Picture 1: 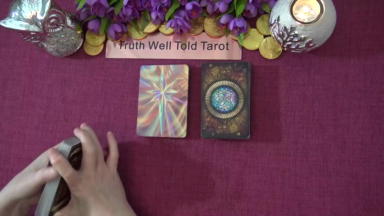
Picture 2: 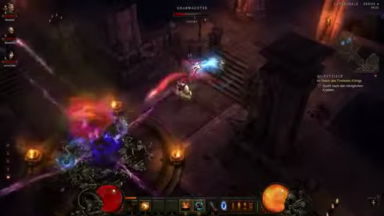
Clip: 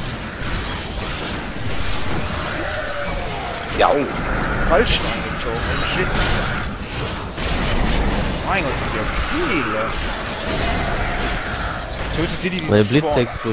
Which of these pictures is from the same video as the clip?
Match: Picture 2